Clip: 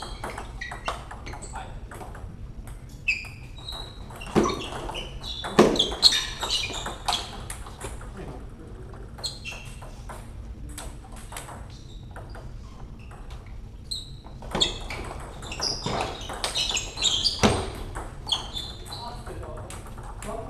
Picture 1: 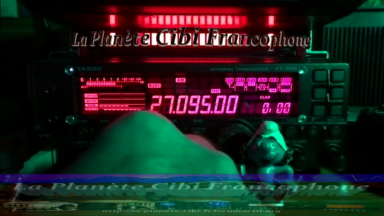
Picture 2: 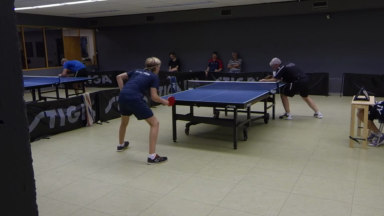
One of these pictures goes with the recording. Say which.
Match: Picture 2